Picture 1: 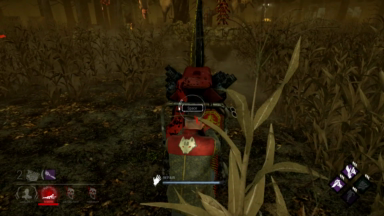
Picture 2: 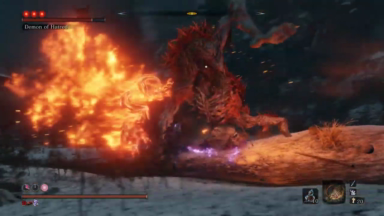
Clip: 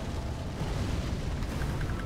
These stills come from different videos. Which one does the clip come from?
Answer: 2